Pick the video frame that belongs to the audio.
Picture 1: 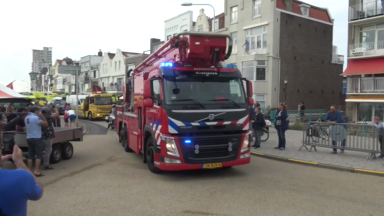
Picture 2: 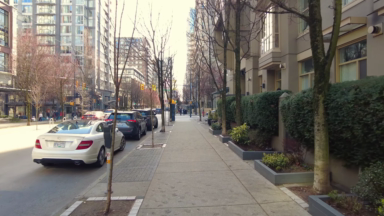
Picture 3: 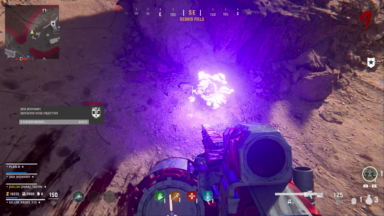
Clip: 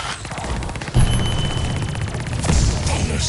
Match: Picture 3